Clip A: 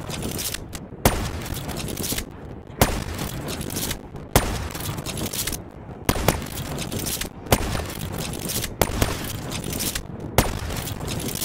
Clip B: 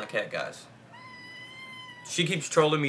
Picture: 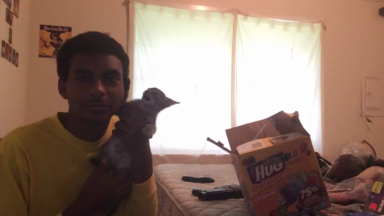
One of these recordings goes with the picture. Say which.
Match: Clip B